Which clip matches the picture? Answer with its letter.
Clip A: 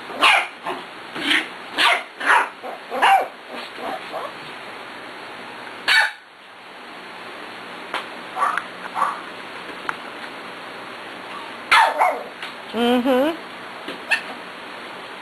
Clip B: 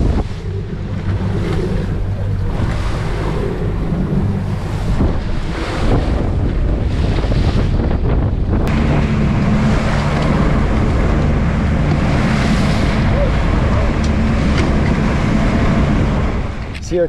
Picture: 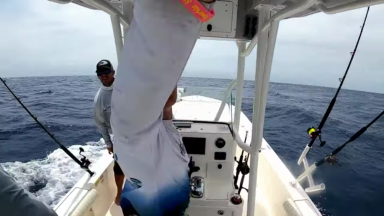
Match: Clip B